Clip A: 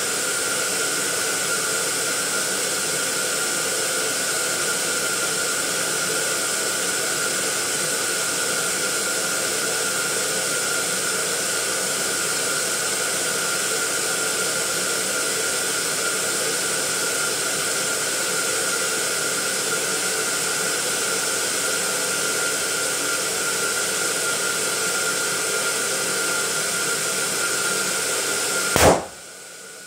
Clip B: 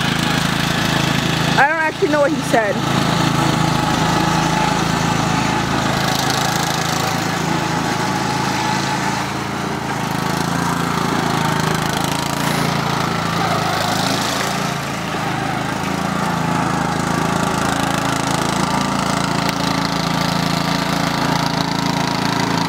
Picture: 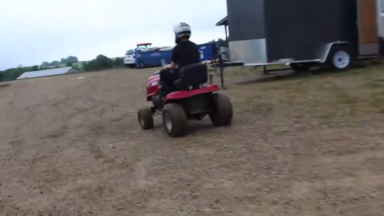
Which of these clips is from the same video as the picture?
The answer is B